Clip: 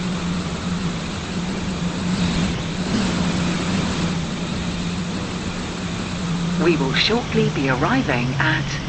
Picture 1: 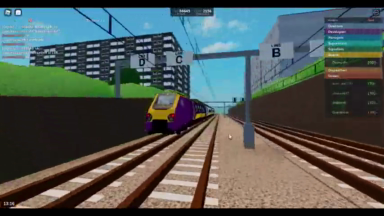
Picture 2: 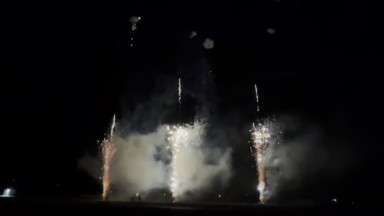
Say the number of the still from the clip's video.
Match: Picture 1